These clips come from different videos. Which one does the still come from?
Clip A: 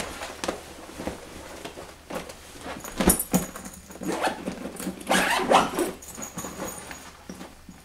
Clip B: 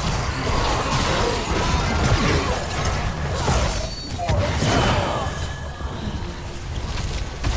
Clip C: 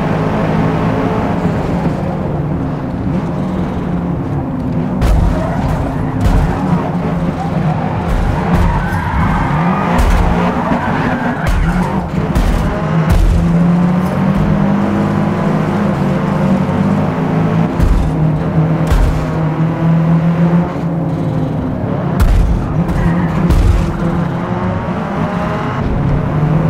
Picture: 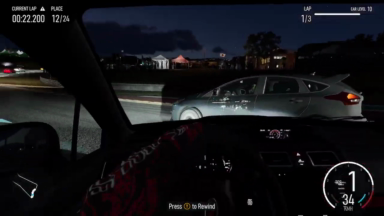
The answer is C